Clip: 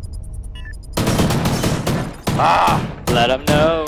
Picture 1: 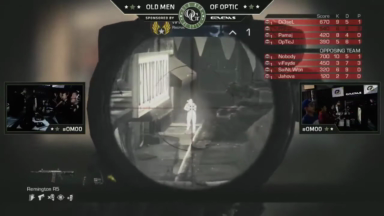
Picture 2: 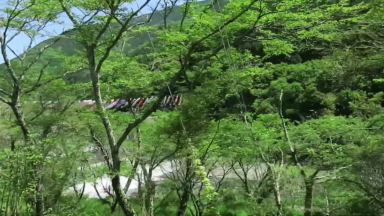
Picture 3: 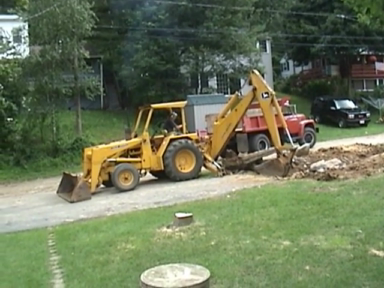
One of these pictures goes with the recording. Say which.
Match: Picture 1